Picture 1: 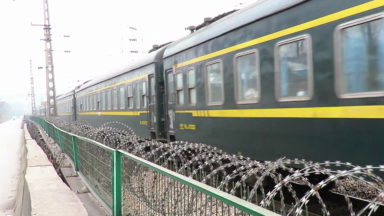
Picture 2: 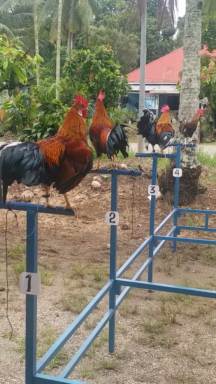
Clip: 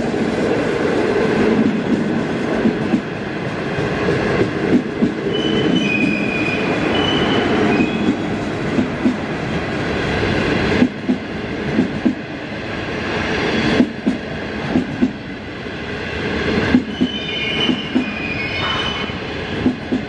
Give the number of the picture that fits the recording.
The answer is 1